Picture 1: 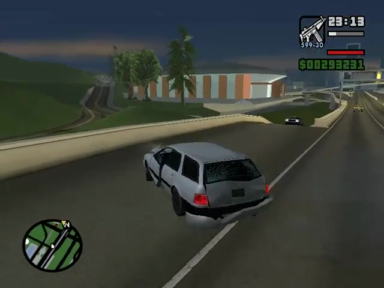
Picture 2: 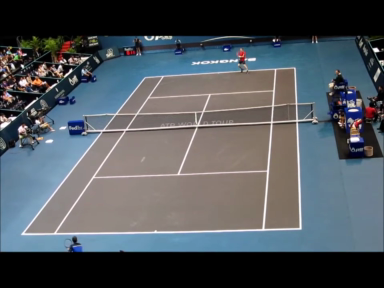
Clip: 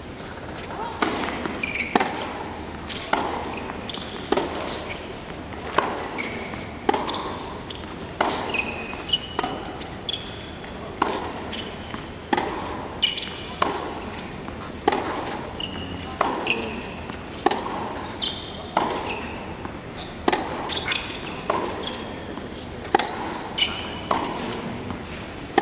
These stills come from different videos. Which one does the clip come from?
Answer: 2